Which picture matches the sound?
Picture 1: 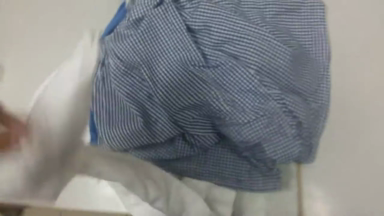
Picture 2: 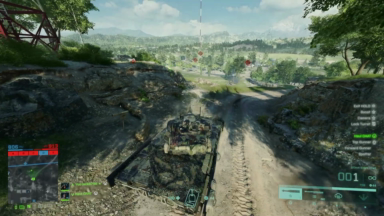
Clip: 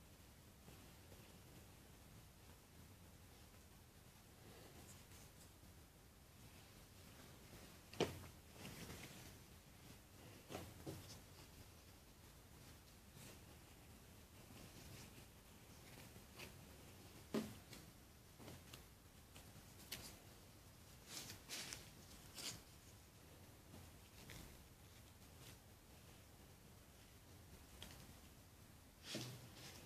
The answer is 1